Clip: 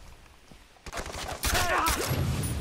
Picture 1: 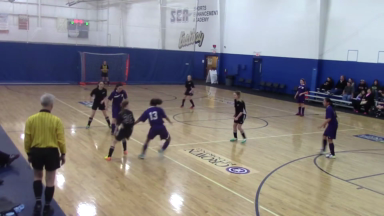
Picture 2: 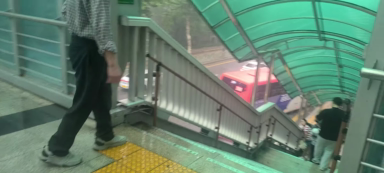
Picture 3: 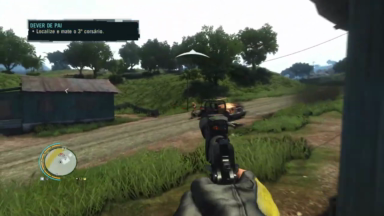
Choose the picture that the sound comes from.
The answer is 3